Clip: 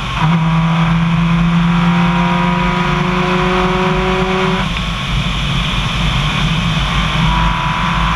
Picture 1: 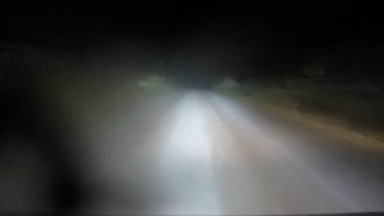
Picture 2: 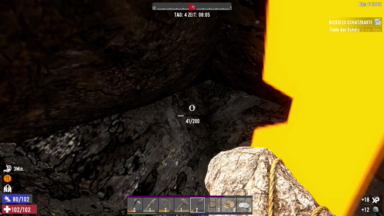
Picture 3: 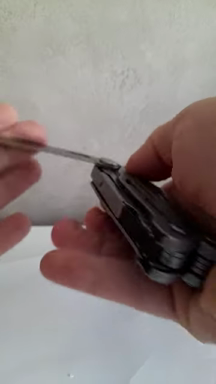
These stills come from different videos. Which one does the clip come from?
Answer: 1